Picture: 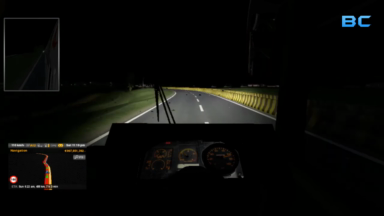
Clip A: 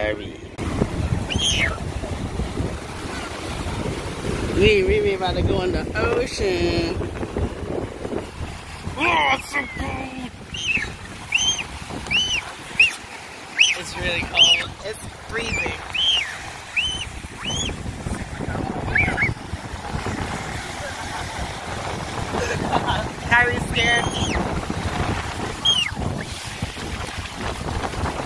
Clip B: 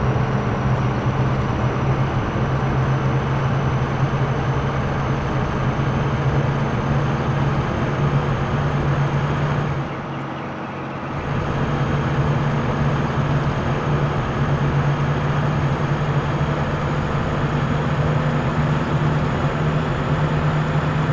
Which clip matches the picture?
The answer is B